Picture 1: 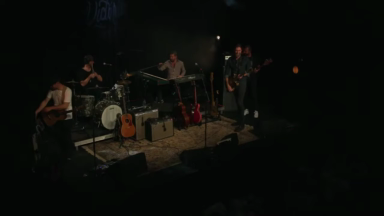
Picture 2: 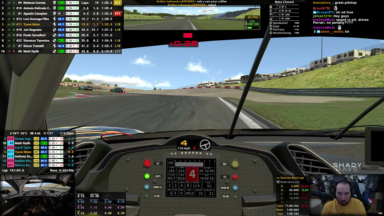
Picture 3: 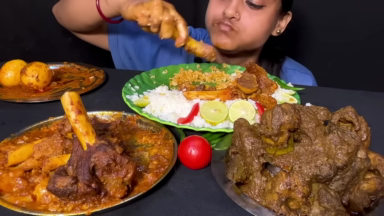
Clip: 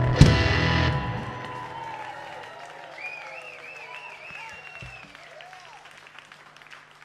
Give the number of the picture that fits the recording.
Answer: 1